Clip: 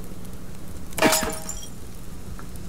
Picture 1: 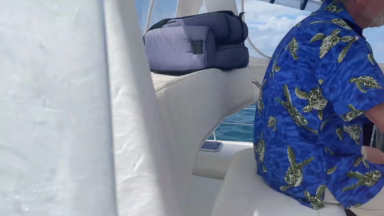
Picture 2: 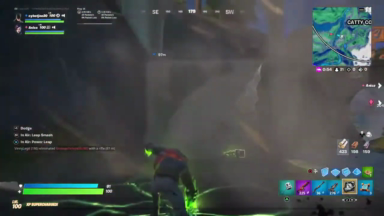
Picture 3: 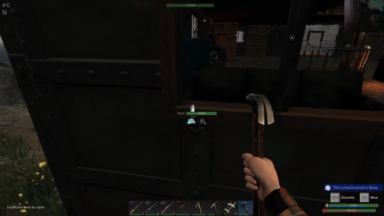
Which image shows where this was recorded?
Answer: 3